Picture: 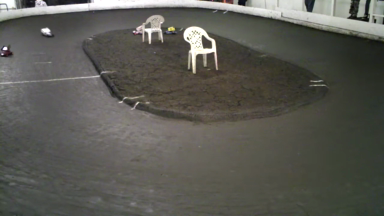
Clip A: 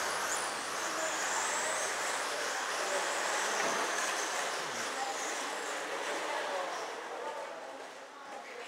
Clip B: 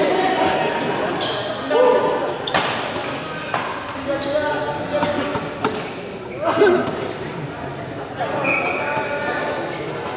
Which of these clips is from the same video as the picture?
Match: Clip A